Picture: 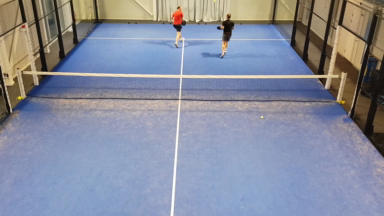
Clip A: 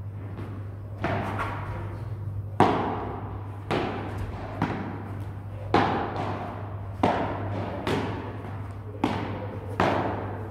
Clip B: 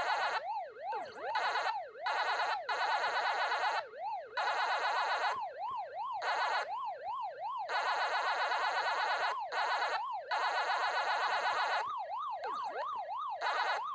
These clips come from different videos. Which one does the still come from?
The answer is A